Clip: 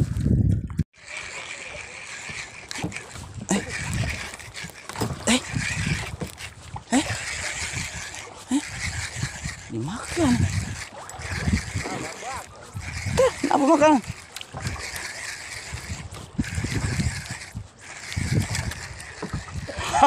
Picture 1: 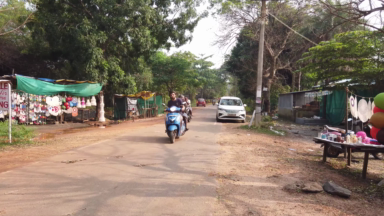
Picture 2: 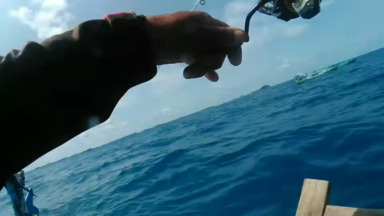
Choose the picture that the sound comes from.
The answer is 2